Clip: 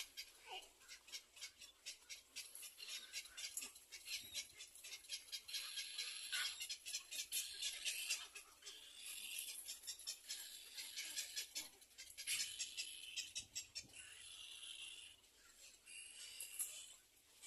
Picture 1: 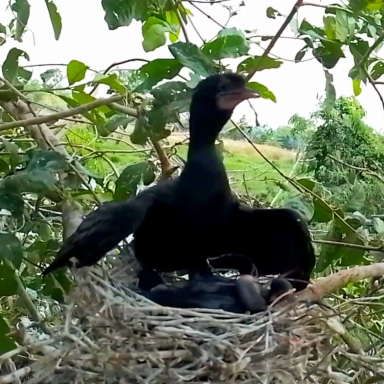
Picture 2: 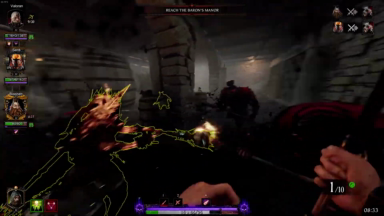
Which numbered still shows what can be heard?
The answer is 1